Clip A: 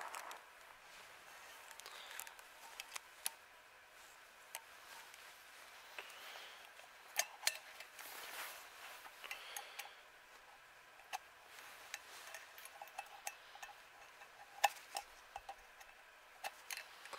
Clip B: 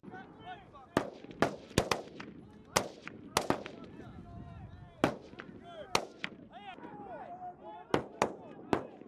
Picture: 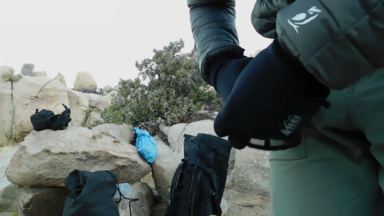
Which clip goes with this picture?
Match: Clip A